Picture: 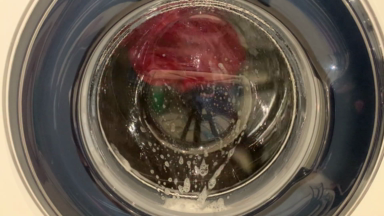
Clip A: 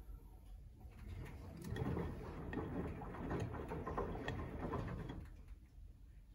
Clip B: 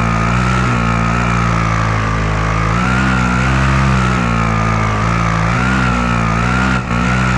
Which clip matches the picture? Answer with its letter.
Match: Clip A